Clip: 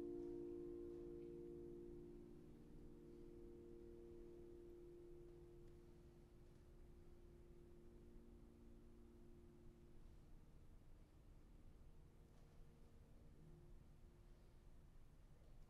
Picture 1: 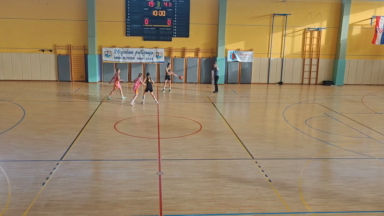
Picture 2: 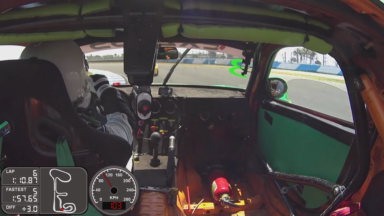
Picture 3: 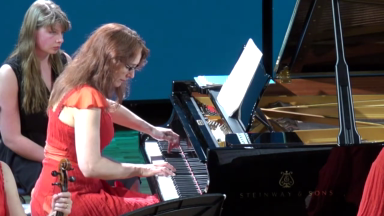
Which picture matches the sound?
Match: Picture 3